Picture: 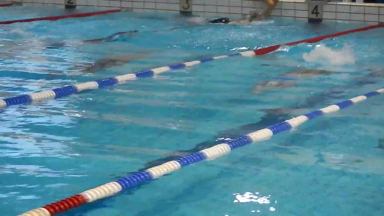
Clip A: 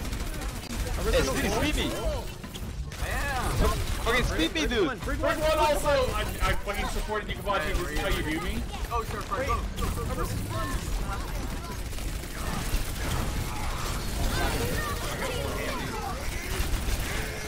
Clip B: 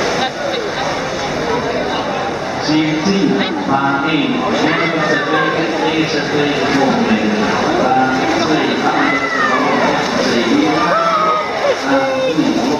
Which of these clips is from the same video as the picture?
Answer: B